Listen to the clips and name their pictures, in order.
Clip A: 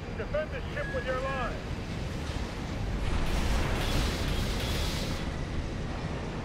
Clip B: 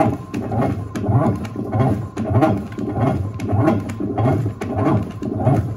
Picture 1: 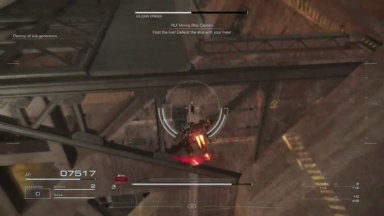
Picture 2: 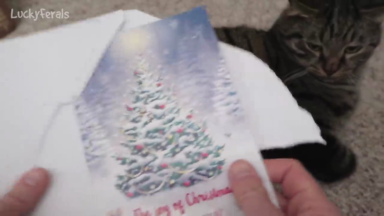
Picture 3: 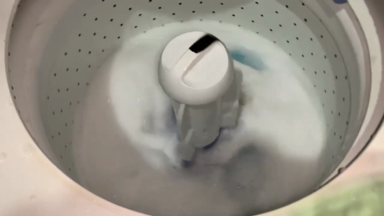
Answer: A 1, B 3